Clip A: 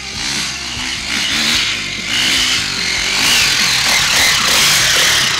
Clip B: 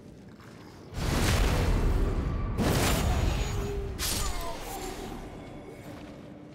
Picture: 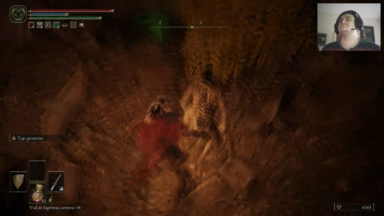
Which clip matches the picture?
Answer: B